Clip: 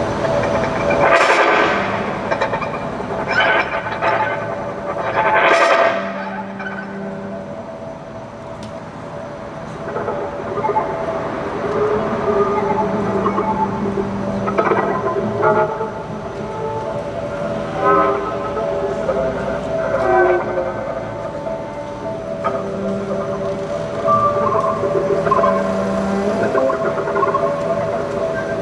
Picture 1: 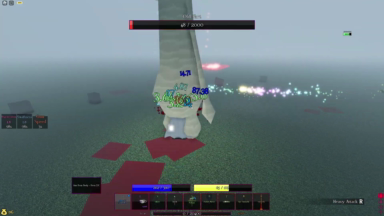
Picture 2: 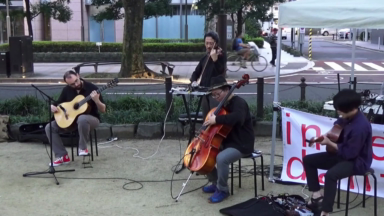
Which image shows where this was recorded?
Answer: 2